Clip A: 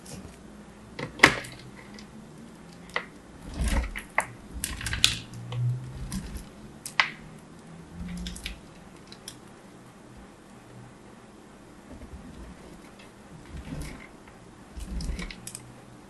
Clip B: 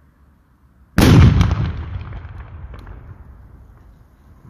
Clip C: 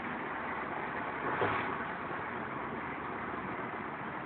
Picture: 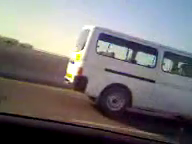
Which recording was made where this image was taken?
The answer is C